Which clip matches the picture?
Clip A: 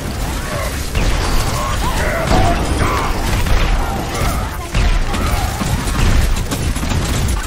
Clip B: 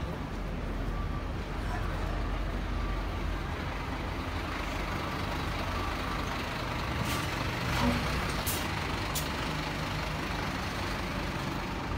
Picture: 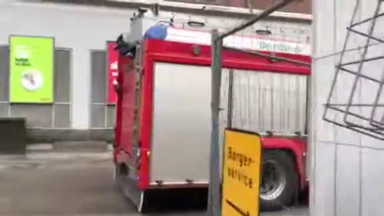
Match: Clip B